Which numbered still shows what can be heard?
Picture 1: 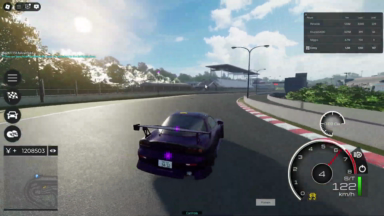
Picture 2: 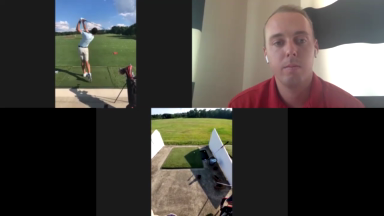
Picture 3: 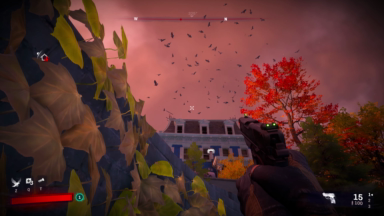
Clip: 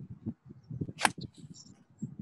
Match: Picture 2